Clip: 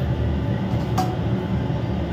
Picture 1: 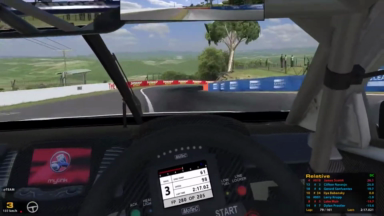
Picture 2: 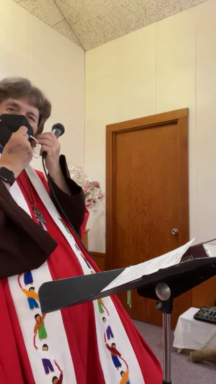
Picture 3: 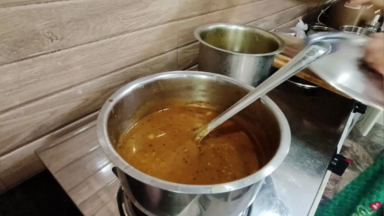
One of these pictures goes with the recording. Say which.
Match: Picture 3